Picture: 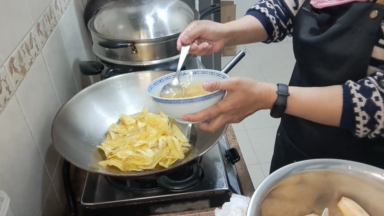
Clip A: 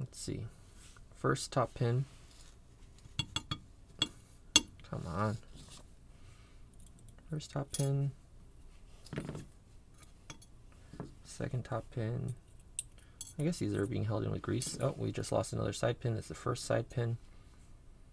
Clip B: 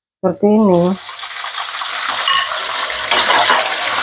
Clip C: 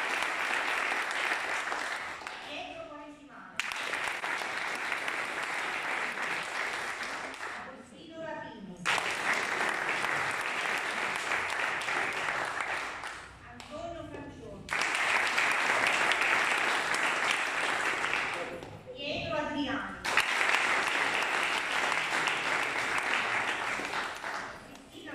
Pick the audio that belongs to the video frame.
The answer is B